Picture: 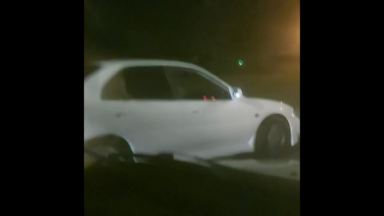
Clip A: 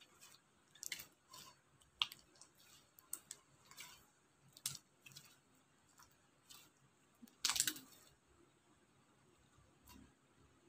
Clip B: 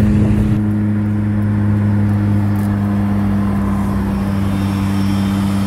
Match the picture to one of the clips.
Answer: B